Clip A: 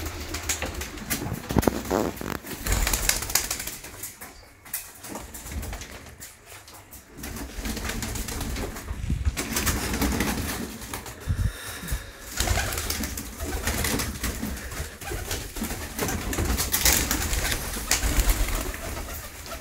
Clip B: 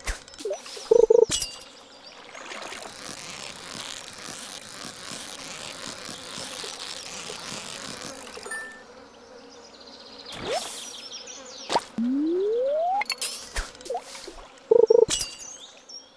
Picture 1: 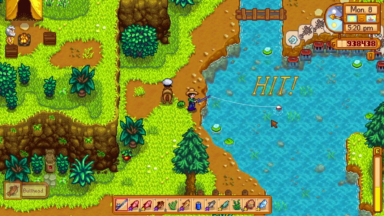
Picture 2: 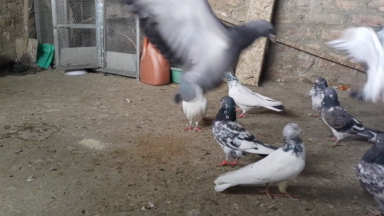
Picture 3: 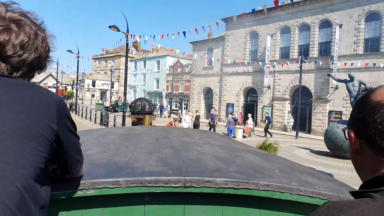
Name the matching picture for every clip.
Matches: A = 2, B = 1